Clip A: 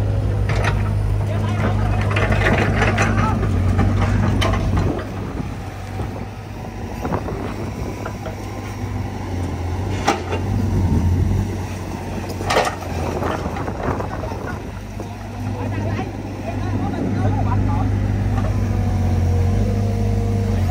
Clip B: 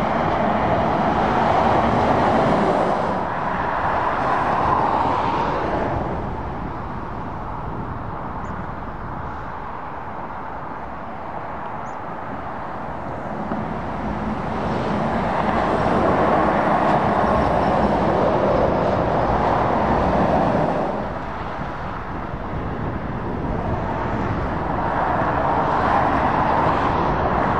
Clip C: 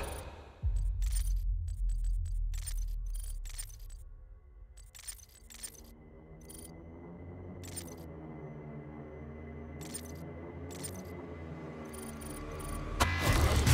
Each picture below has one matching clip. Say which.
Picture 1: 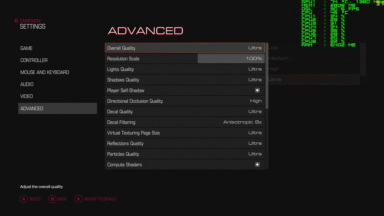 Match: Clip C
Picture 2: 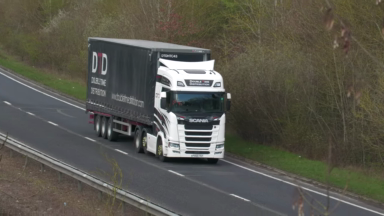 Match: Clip B